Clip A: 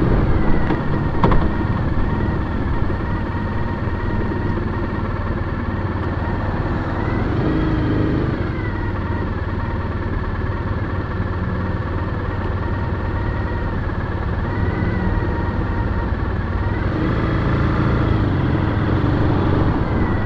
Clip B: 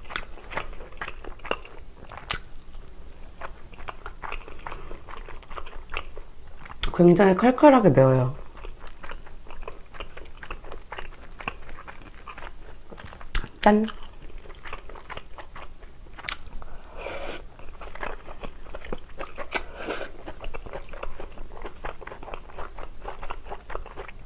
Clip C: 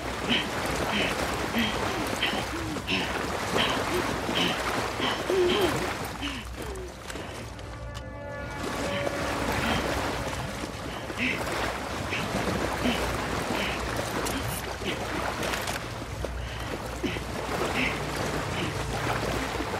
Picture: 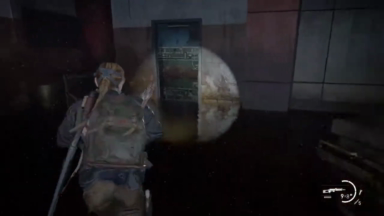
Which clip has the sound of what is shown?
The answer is C